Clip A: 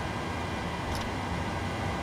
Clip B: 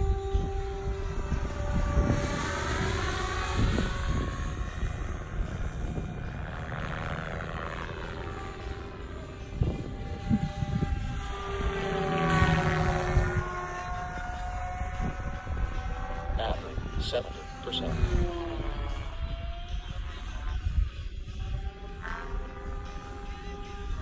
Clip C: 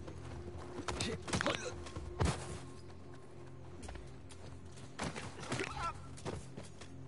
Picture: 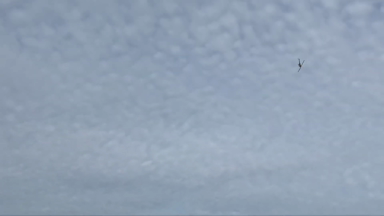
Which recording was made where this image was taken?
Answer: B